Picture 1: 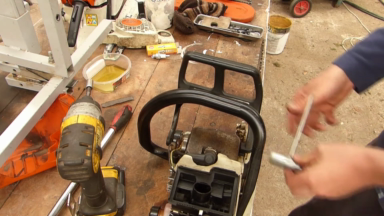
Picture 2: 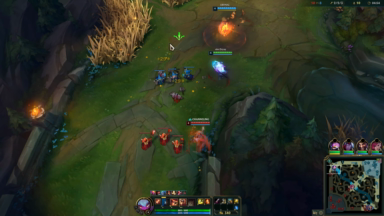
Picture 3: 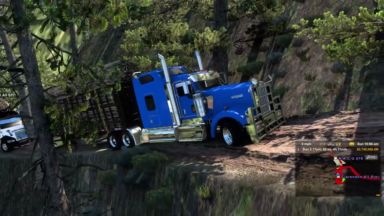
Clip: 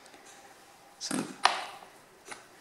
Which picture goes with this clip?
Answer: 1